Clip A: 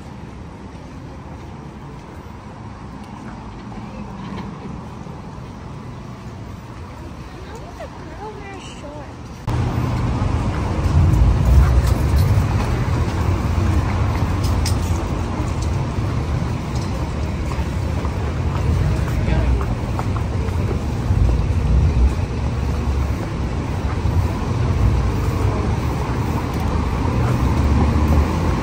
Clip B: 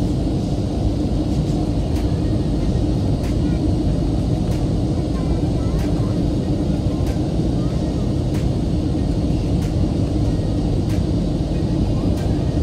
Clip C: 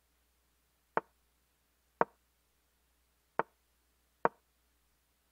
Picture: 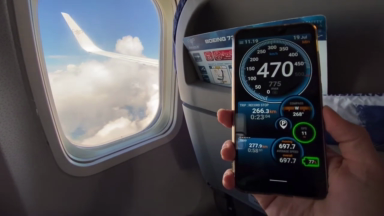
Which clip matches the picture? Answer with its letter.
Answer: B